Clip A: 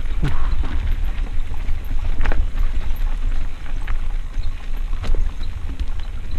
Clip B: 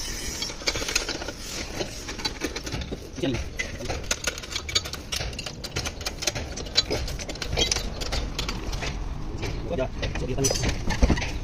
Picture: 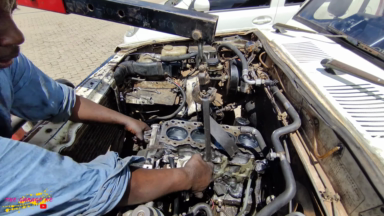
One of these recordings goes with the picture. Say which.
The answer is B